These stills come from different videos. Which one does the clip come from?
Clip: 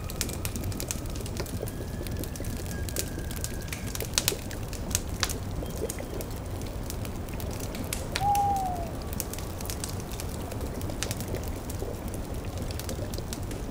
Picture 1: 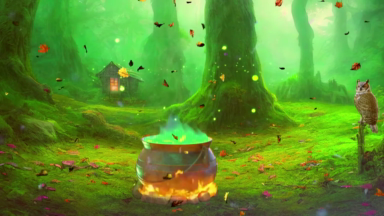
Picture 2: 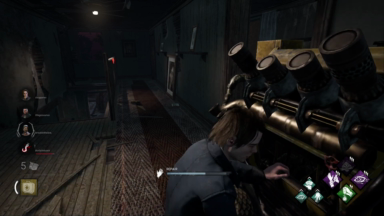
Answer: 1